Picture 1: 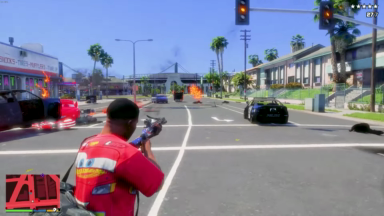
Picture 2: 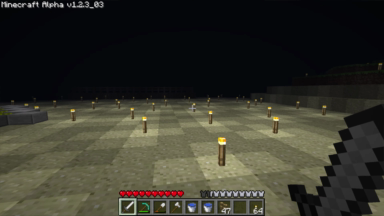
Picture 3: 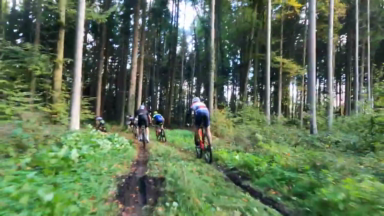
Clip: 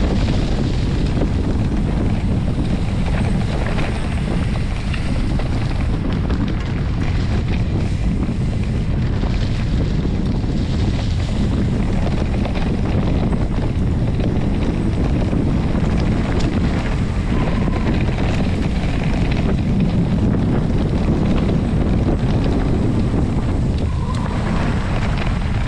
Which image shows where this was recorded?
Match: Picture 3